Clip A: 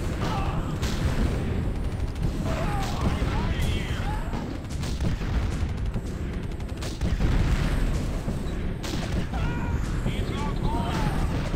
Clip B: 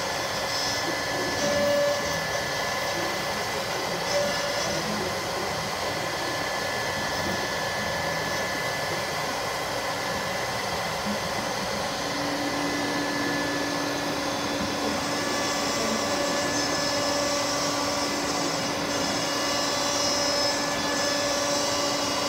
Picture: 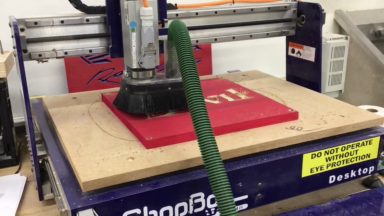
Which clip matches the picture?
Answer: B